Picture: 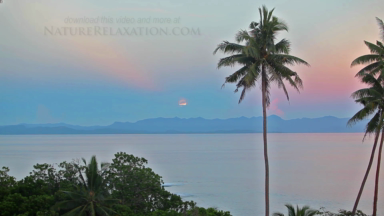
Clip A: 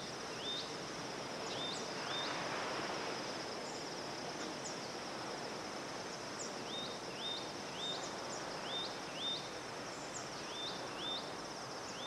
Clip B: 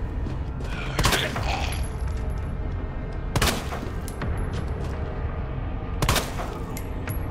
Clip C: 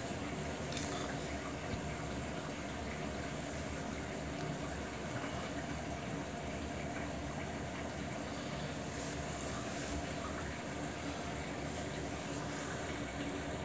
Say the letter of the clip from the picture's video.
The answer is A